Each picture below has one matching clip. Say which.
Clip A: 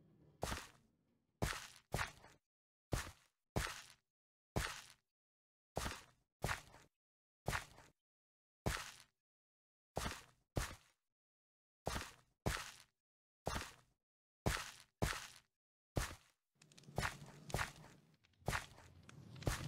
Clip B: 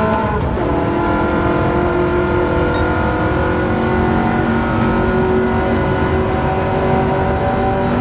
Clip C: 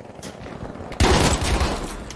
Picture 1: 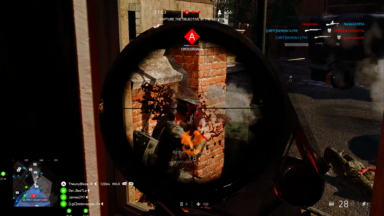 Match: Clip C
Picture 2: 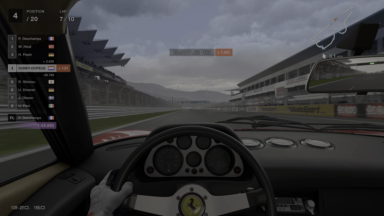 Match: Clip B